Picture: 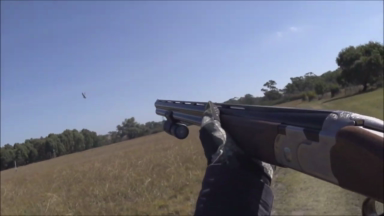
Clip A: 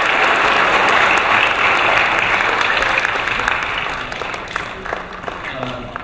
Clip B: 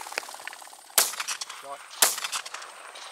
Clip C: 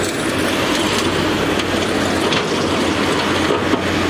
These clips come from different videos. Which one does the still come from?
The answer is B